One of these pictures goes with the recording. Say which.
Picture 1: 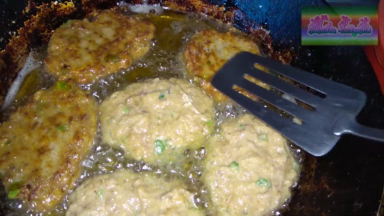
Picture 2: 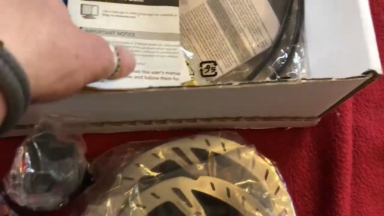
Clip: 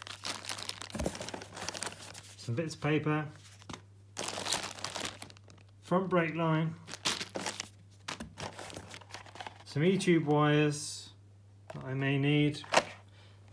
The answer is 2